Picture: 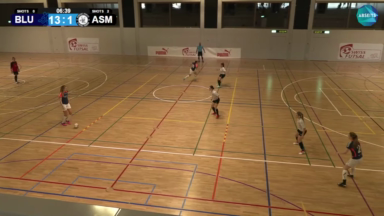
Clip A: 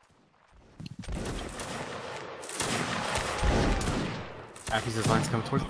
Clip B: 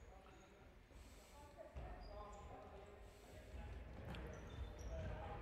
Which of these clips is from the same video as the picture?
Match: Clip B